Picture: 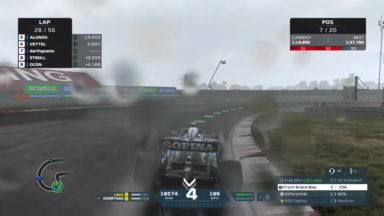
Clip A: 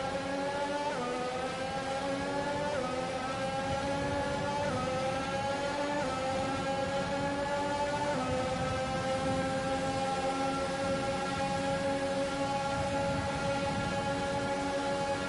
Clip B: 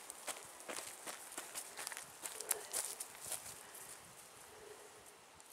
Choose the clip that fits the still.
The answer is A